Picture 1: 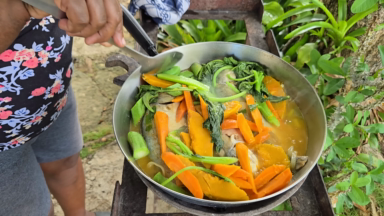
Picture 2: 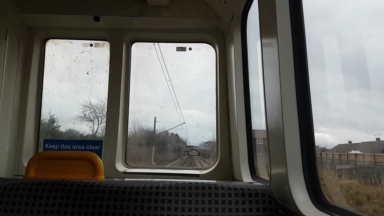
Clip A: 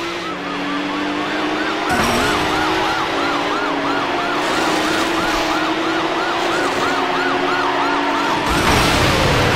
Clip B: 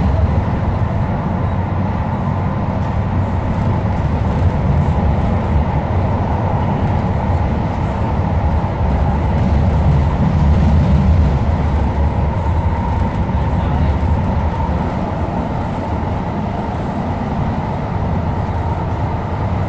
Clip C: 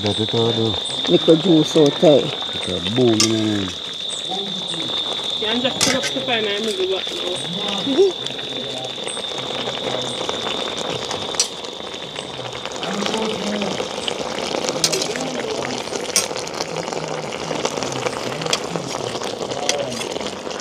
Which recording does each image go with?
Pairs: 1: C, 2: B